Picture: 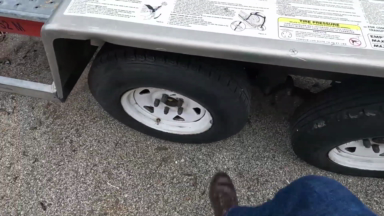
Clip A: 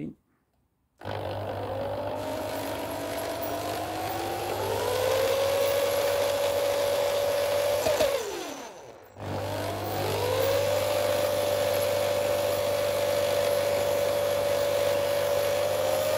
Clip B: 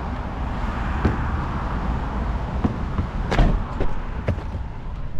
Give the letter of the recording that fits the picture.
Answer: B